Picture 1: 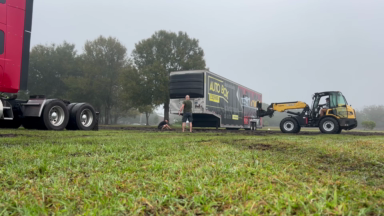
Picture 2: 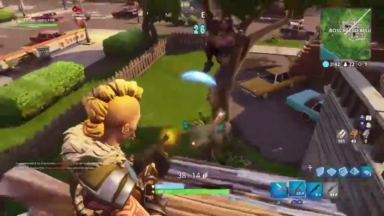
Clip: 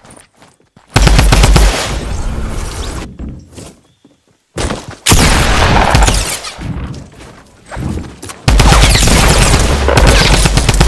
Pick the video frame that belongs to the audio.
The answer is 2